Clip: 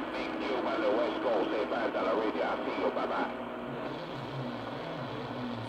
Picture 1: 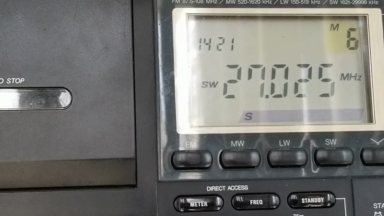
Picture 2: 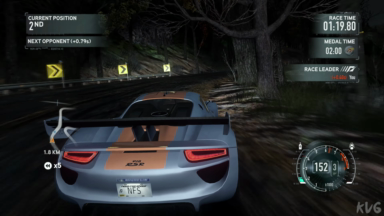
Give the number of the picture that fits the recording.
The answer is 1